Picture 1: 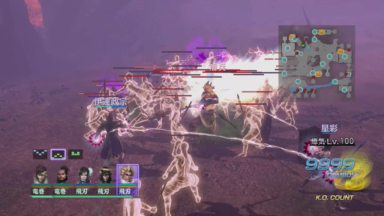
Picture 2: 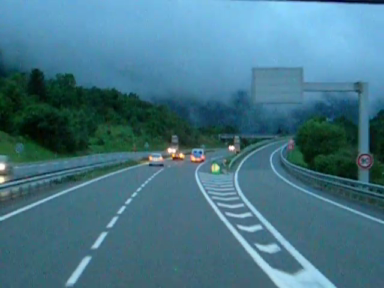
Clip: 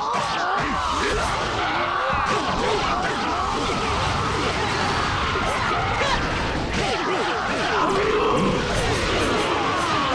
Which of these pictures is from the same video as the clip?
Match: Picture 1